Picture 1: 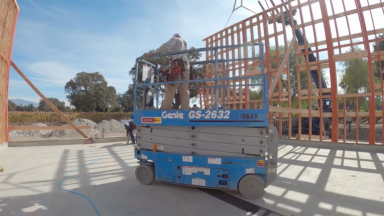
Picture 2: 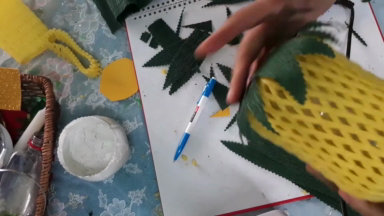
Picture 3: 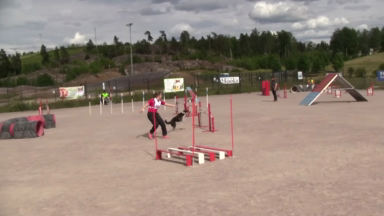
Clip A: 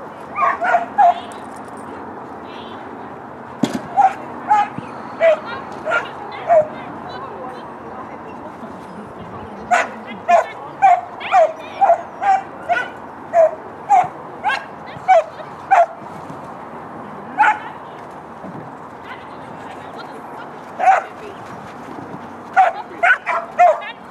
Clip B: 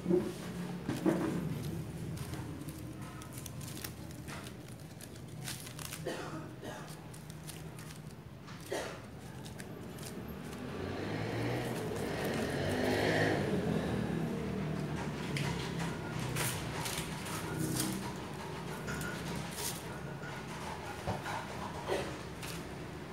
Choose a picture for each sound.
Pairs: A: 3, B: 2